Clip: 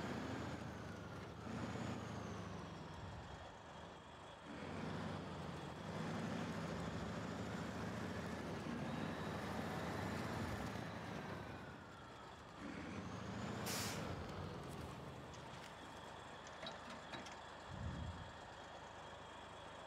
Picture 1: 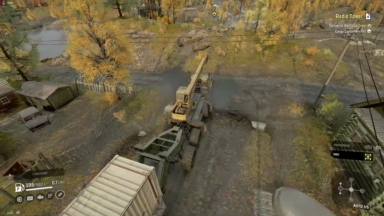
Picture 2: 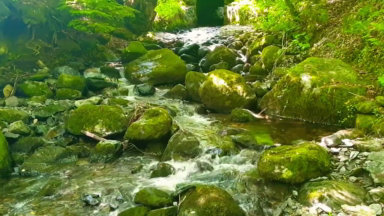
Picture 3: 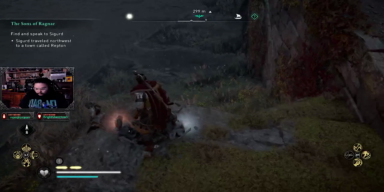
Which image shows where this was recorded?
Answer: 1